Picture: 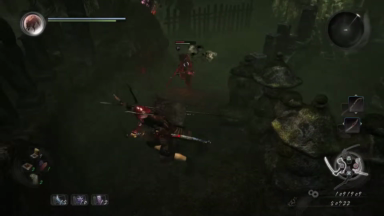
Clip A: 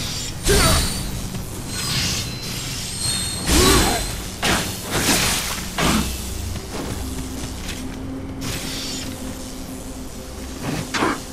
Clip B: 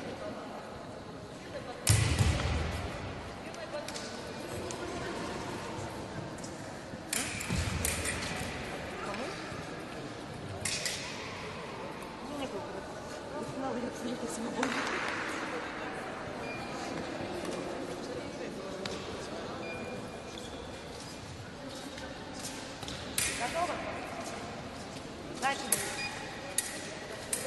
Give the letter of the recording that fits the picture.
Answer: A